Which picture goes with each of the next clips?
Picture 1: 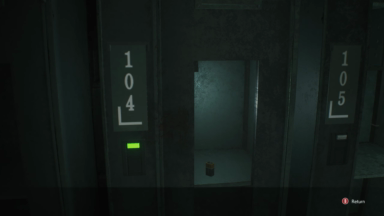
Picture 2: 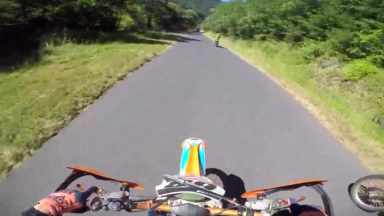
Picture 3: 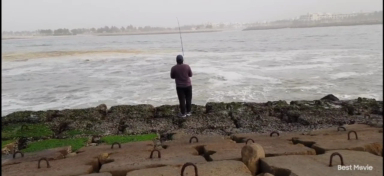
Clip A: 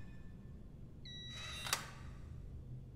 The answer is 1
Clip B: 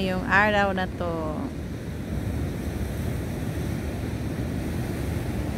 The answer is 3